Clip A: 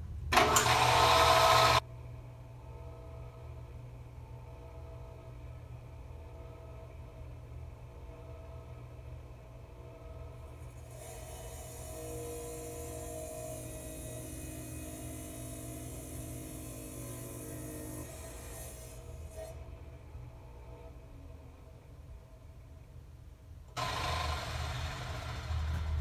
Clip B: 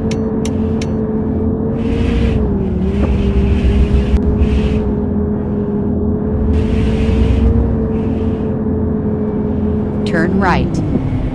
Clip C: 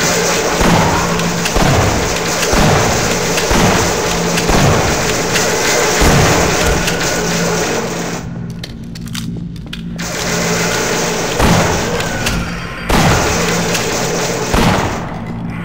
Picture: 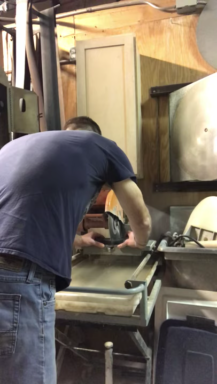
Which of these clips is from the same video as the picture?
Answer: A